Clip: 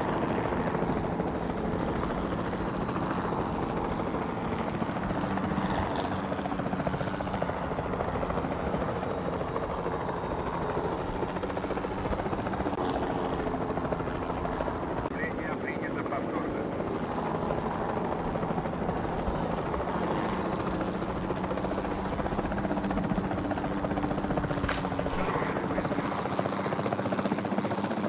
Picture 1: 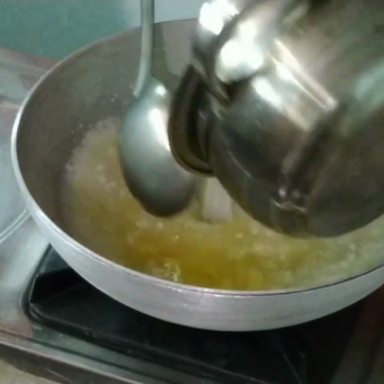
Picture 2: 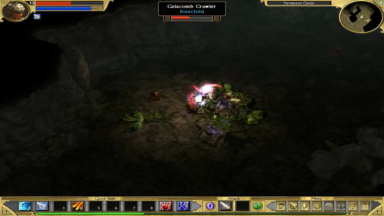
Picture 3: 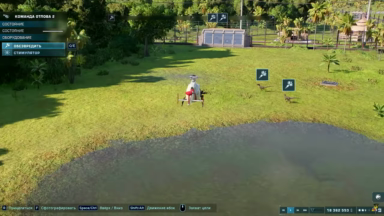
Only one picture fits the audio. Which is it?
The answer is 3